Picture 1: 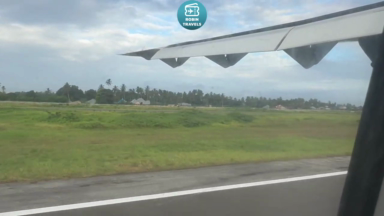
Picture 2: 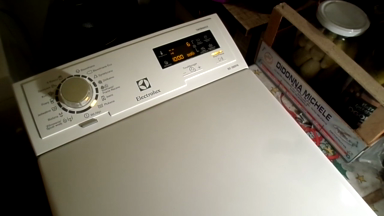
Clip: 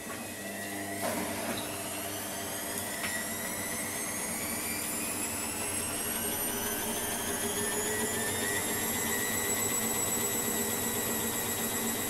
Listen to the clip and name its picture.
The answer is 2